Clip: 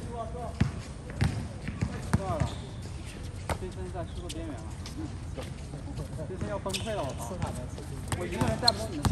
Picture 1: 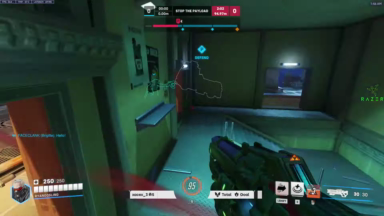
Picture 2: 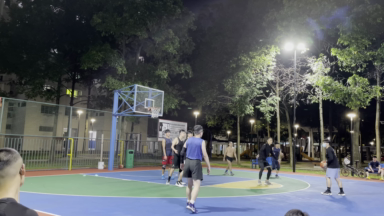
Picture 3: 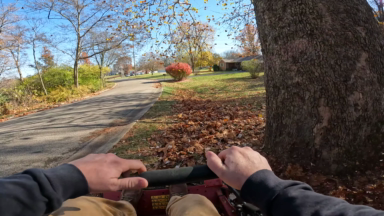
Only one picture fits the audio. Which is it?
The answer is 2